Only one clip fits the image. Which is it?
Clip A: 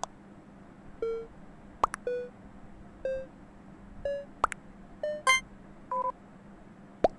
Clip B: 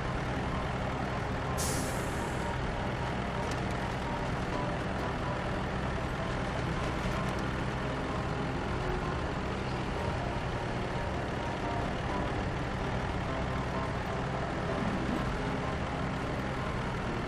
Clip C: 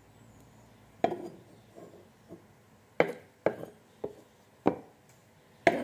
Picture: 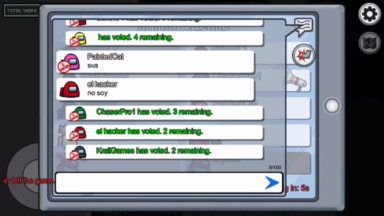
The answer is A